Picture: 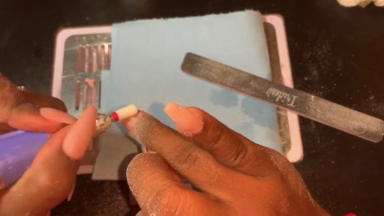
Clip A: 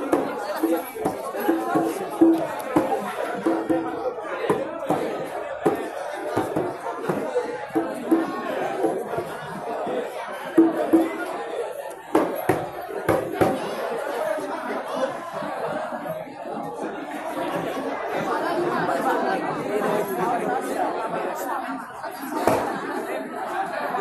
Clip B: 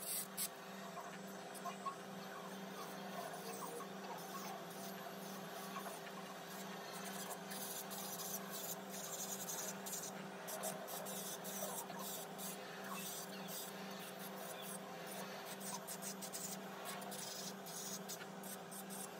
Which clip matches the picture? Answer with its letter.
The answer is B